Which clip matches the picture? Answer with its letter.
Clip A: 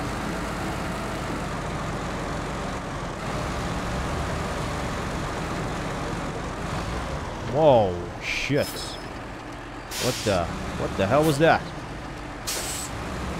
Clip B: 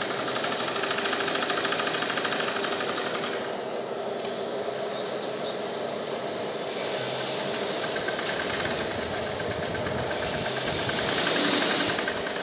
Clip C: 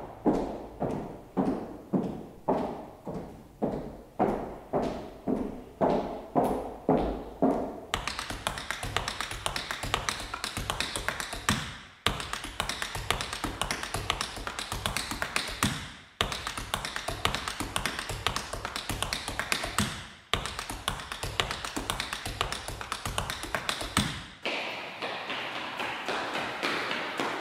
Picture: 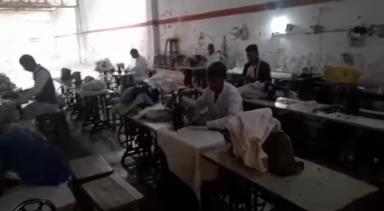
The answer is B